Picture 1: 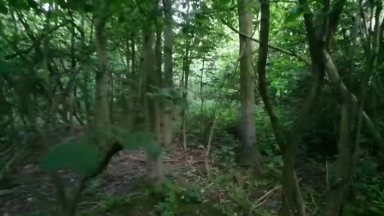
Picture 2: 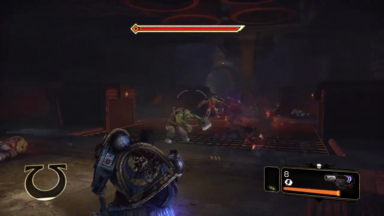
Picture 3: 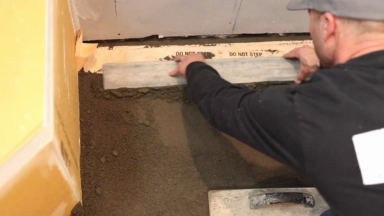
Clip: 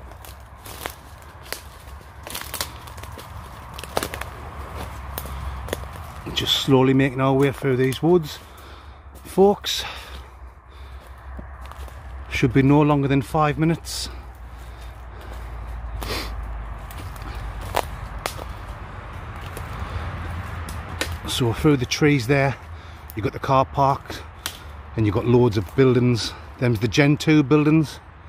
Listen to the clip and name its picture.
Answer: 1